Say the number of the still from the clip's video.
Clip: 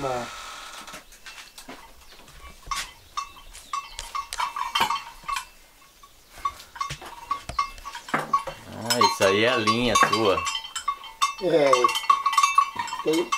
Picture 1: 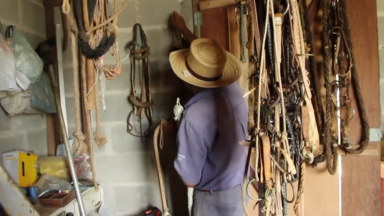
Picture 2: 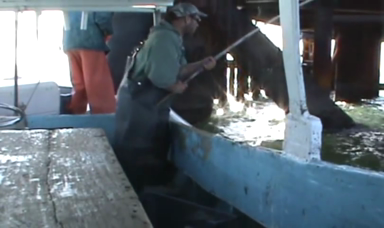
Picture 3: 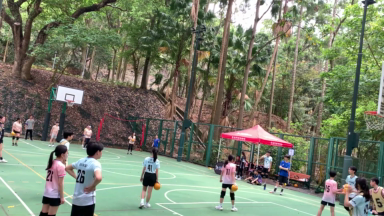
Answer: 1